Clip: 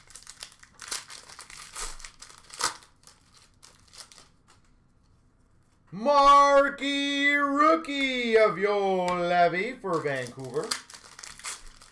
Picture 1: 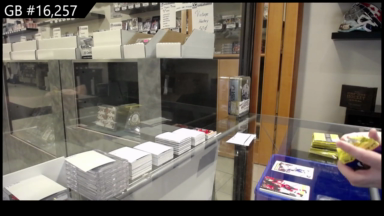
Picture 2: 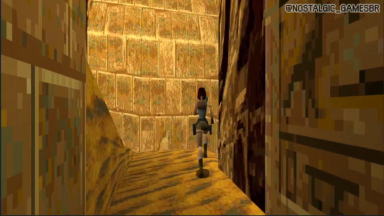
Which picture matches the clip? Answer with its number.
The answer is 1